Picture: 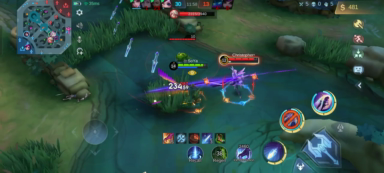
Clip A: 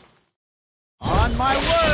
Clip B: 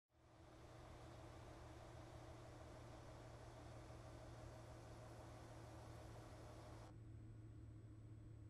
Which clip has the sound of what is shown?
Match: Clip A